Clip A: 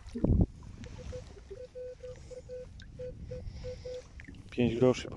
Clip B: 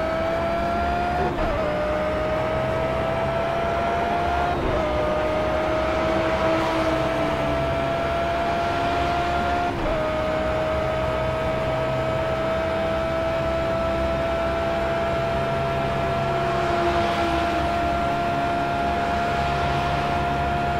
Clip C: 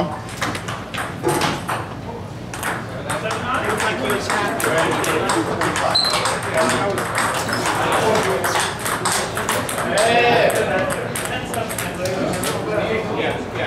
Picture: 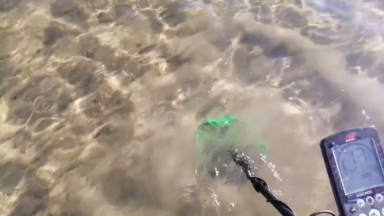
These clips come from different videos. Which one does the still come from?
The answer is A